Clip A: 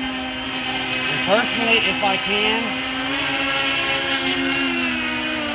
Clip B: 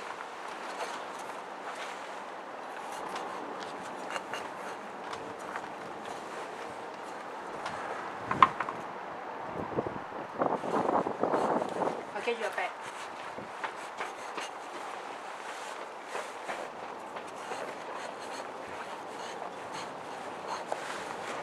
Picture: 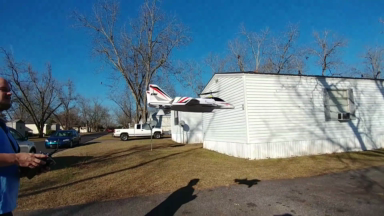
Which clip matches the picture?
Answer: A